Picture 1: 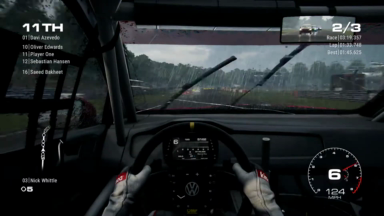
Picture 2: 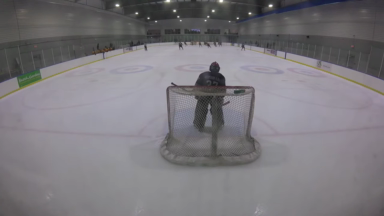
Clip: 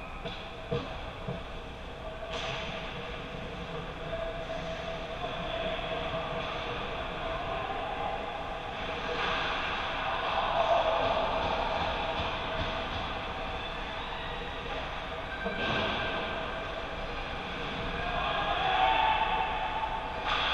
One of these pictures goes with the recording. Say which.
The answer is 2